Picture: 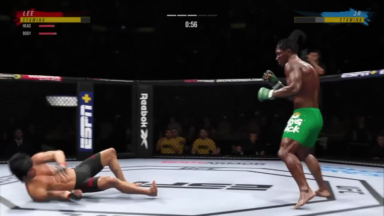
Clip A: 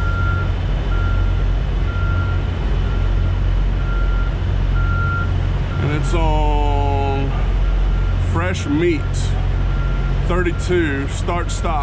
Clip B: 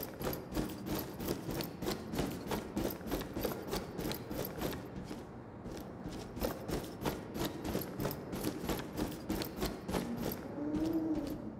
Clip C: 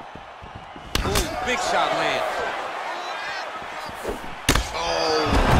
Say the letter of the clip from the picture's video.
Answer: C